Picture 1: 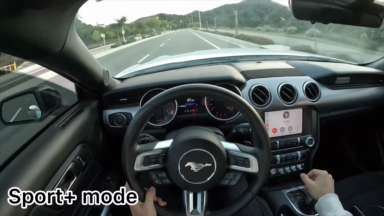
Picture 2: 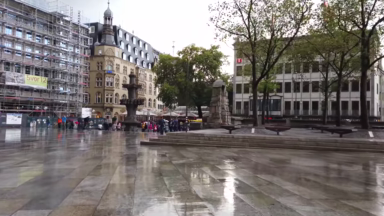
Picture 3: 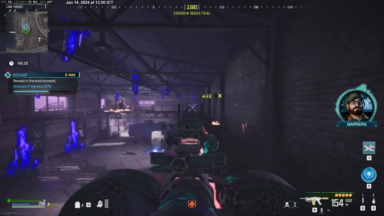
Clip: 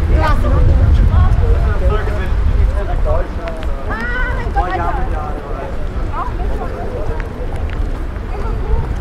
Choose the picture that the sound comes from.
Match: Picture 2